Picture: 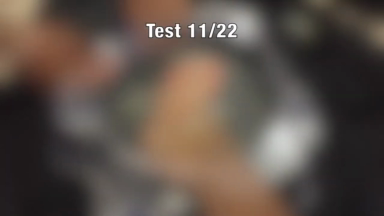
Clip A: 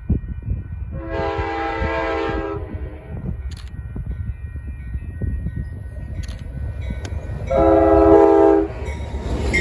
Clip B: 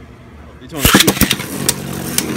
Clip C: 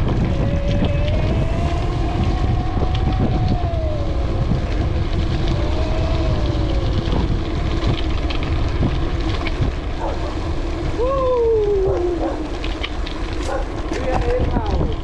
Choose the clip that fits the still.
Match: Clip B